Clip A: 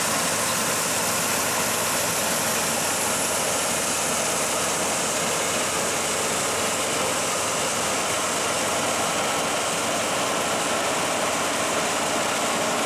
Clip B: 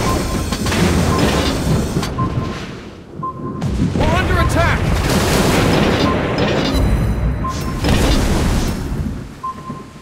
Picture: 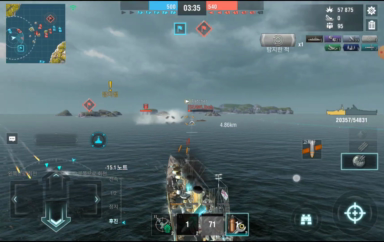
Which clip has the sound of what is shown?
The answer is B